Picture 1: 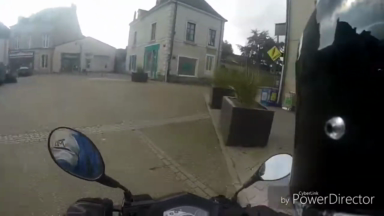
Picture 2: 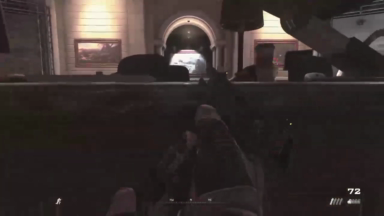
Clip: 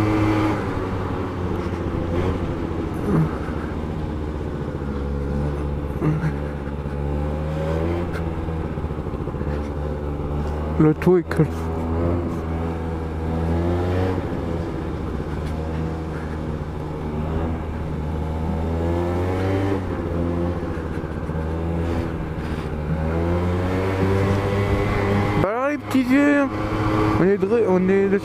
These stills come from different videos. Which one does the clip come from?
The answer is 1